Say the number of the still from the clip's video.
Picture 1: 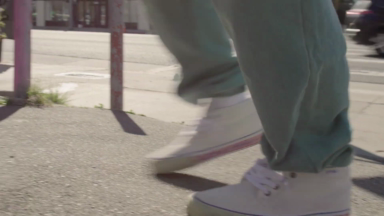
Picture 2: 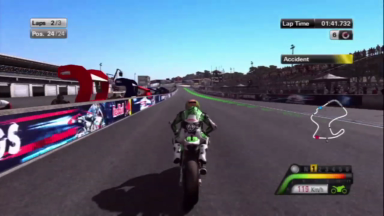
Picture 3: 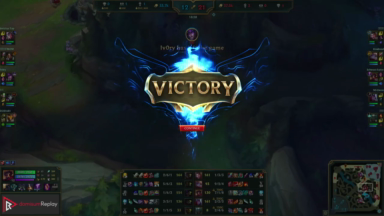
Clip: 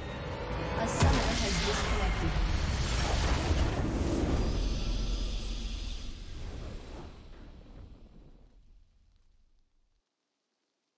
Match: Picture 3